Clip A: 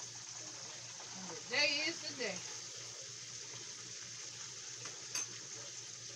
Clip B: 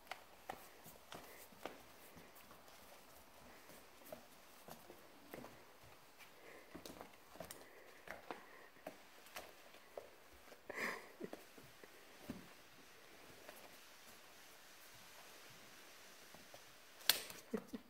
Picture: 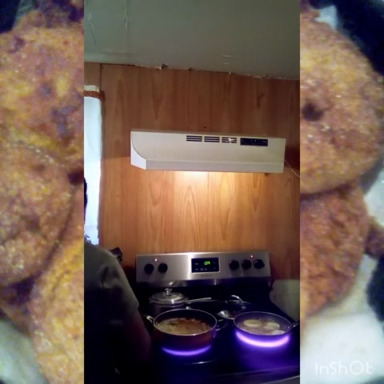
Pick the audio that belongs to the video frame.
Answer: A